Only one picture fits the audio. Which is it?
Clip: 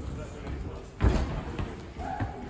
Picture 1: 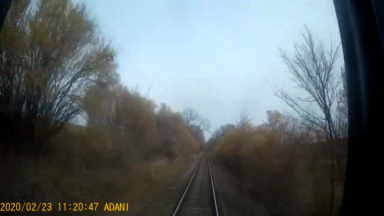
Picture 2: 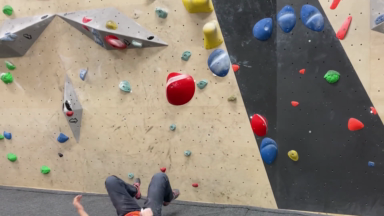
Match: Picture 2